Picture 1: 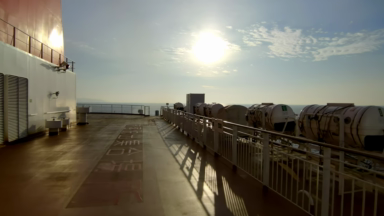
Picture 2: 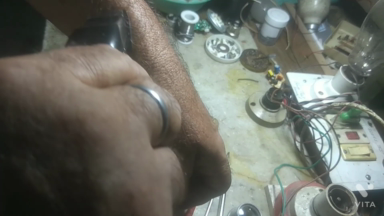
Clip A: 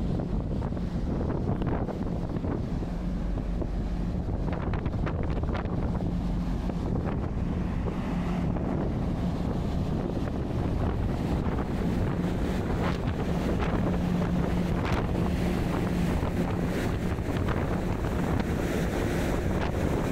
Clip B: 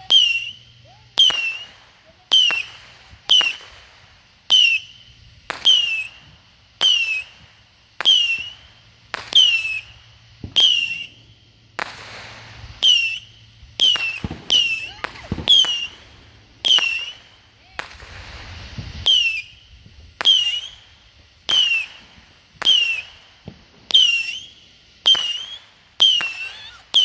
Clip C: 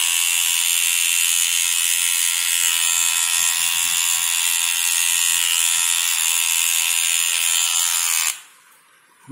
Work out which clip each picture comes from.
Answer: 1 A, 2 C